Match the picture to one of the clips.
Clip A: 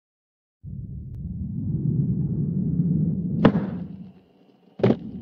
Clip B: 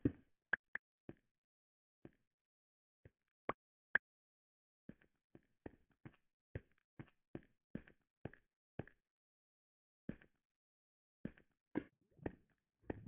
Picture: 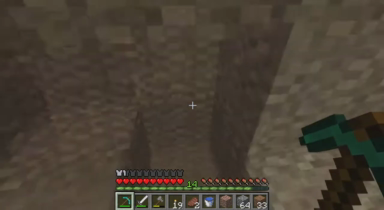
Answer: B